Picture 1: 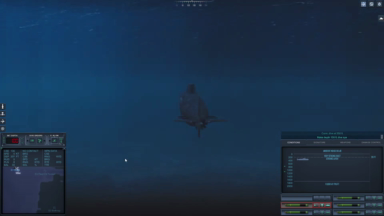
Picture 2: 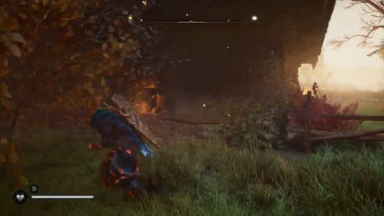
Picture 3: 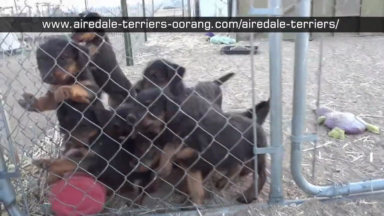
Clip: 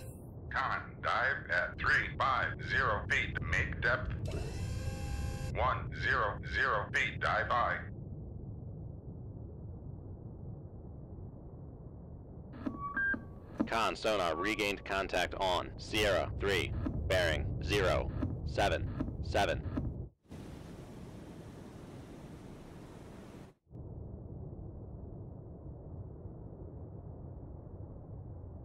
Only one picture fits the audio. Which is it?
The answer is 1